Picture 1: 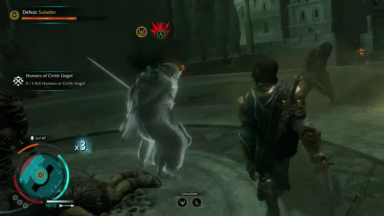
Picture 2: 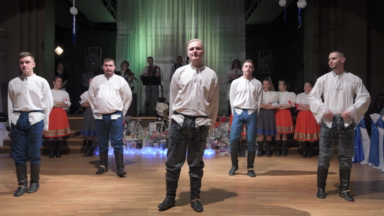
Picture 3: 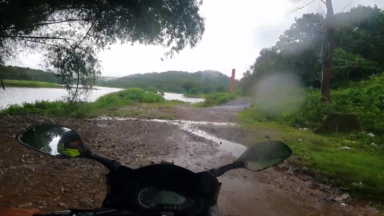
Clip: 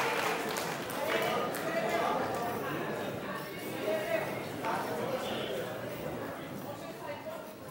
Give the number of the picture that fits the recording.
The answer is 2